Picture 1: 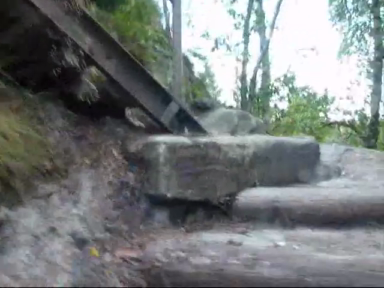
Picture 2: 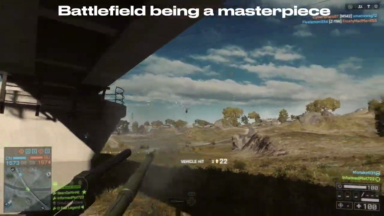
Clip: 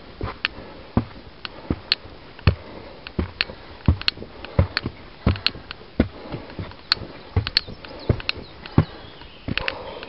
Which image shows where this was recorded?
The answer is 1